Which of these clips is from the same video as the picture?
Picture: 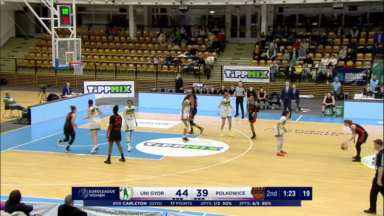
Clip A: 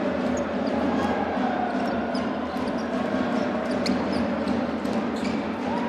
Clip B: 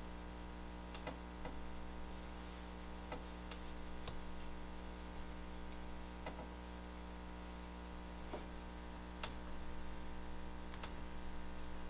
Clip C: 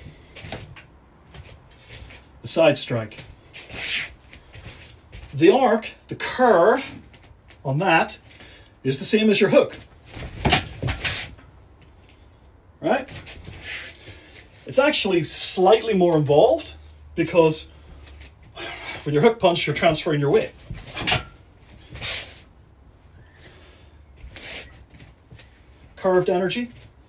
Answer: A